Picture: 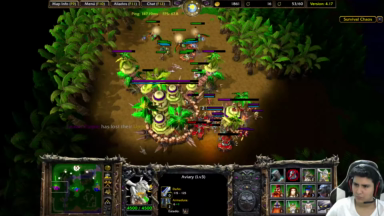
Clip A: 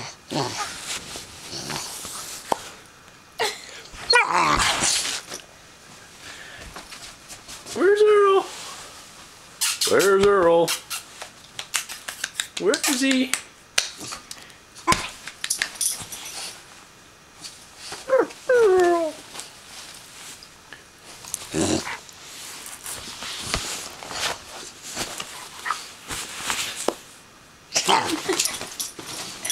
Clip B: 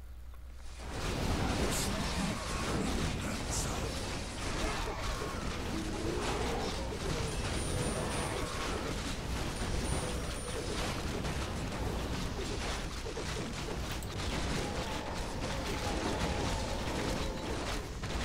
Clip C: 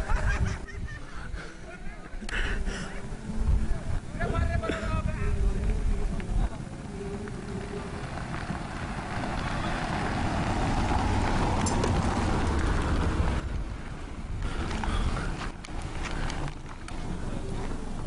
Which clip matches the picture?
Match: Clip B